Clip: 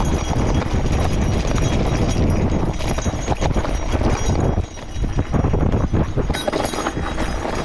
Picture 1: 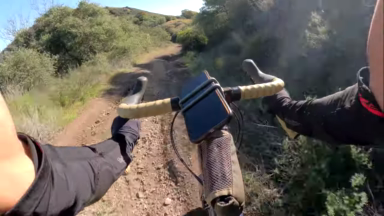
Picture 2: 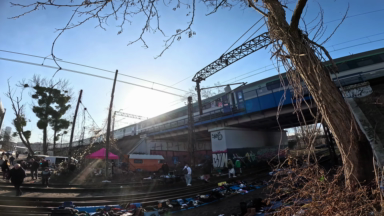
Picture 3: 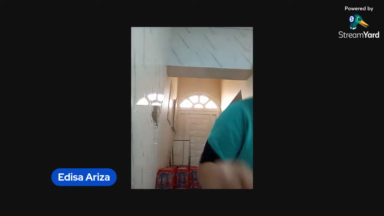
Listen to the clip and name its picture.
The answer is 1